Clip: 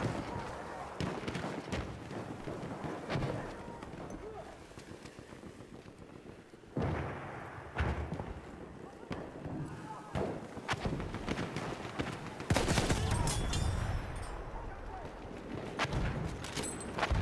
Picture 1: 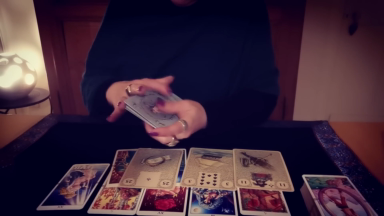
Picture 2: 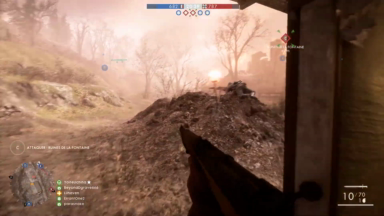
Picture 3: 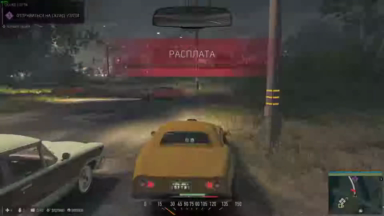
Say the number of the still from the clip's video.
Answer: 2